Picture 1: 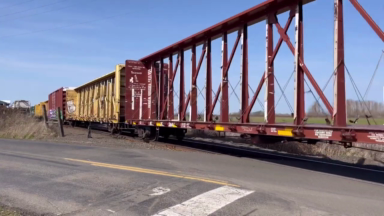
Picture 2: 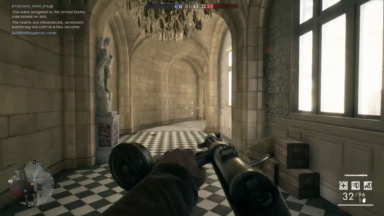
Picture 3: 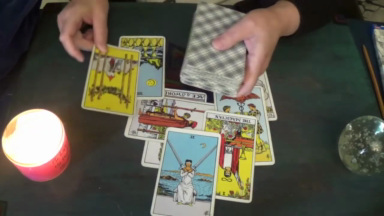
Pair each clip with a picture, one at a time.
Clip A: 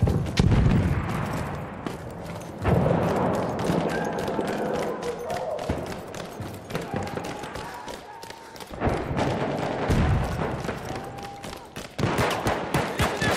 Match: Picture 2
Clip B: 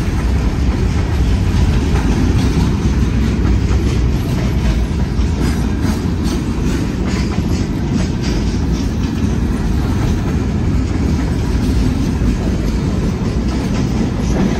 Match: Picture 1